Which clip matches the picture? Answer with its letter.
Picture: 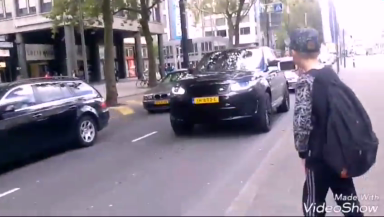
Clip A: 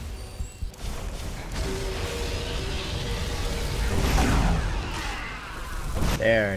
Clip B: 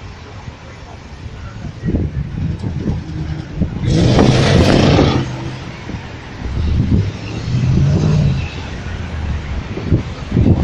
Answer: B